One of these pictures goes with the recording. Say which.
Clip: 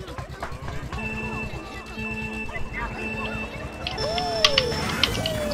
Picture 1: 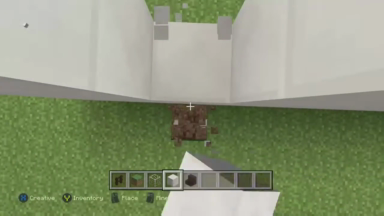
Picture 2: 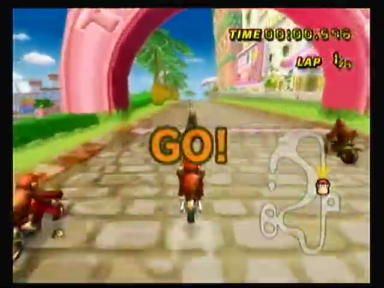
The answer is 2